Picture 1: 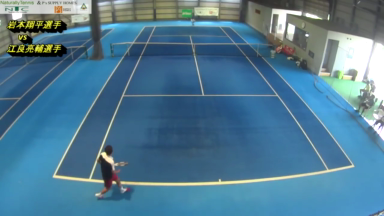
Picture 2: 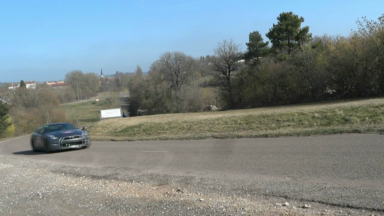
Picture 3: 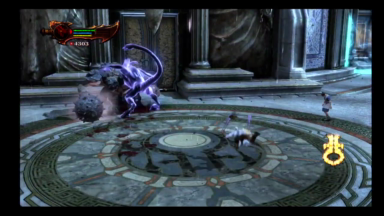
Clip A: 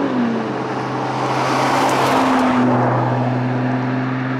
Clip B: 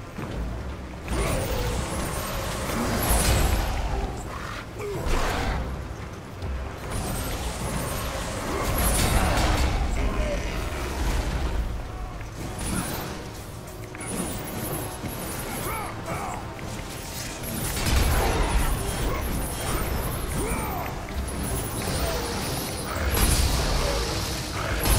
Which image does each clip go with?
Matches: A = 2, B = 3